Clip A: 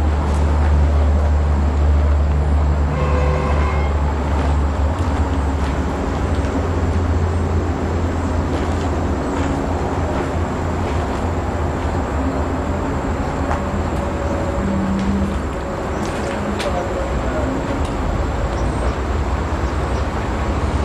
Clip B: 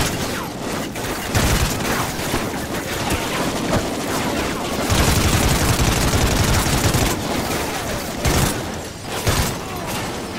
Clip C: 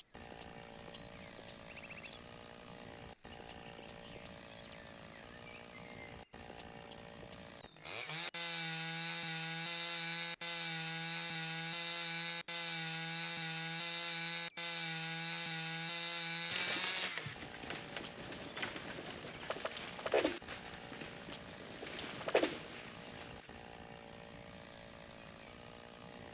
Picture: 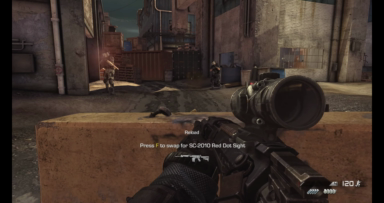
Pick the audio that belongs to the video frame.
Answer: B